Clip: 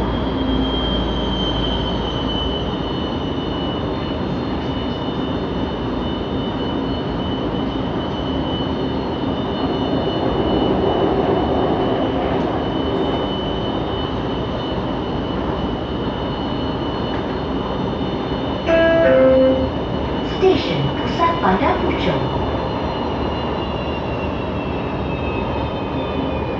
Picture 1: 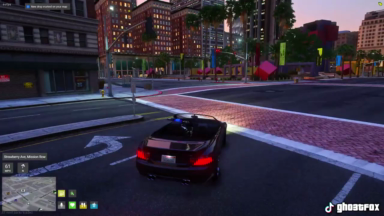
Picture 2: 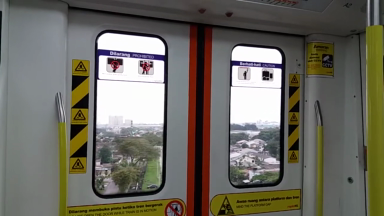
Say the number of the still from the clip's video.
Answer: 2